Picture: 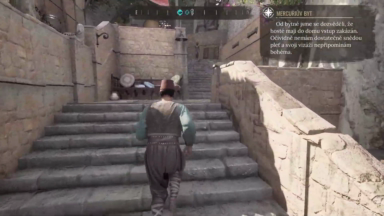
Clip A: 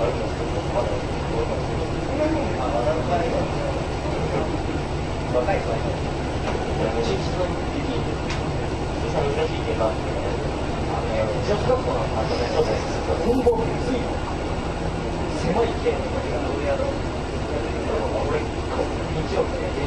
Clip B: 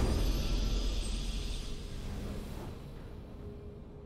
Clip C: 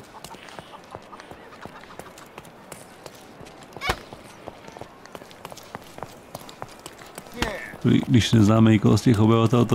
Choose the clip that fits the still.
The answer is C